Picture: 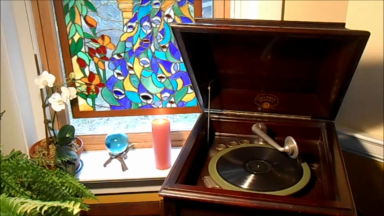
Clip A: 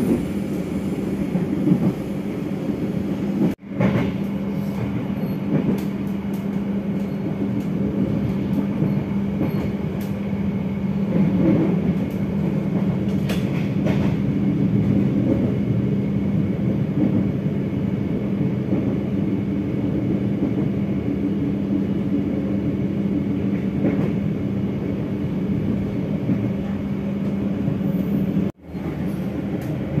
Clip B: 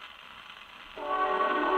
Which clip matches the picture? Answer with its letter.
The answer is B